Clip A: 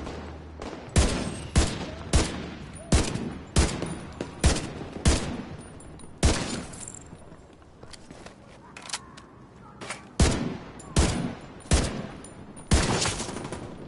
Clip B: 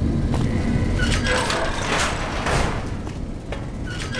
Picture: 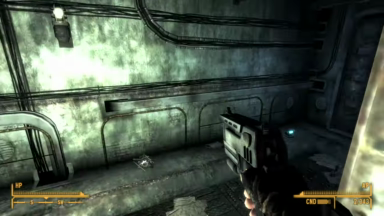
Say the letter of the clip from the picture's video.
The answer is B